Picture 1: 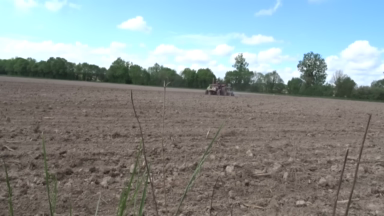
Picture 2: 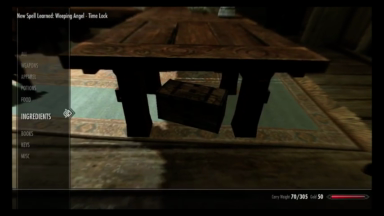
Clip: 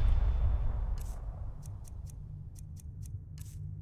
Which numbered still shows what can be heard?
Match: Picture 2